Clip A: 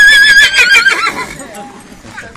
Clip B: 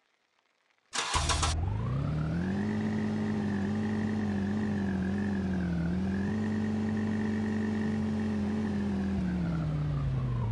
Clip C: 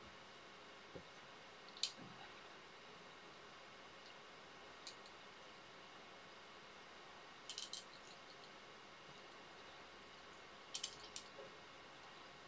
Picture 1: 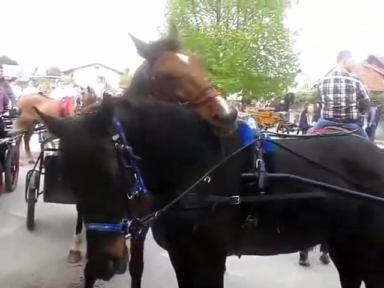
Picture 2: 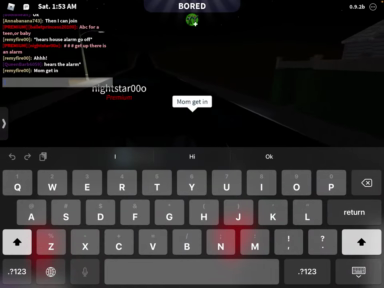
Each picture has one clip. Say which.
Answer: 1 A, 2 B